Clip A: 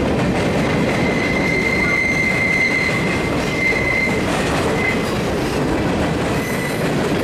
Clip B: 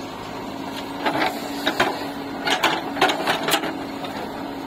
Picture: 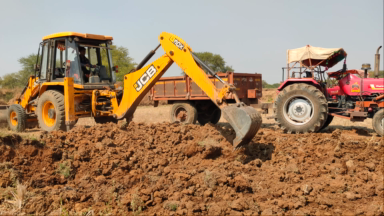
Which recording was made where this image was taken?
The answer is B